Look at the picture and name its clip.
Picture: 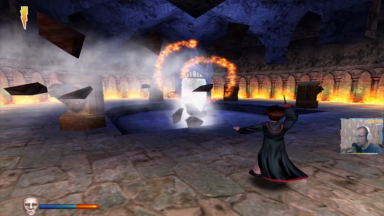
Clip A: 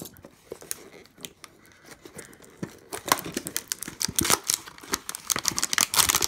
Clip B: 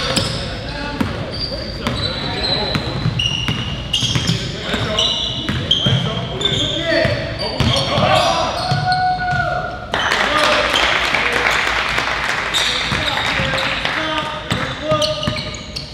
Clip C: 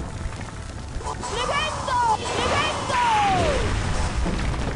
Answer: C